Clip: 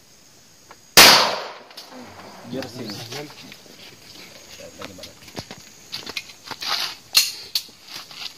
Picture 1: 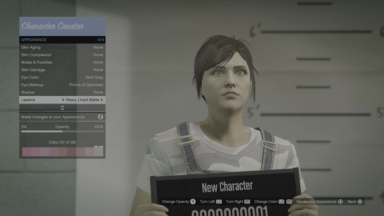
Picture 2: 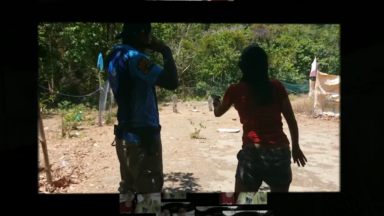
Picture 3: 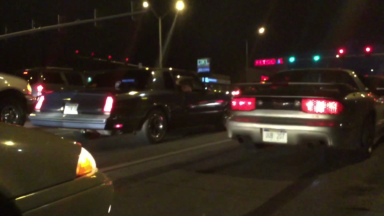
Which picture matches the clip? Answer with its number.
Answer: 2